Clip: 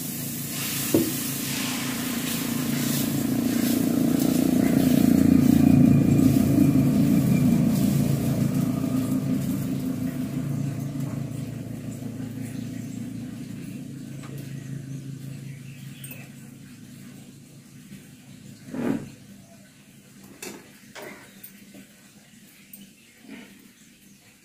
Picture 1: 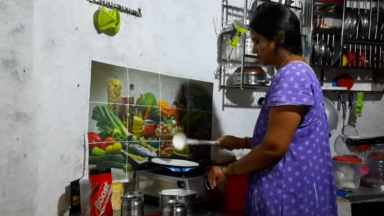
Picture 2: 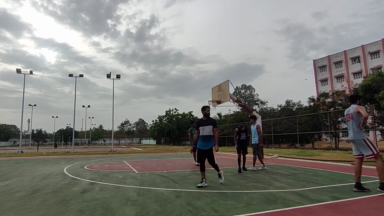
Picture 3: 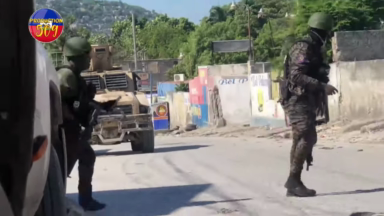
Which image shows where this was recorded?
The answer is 1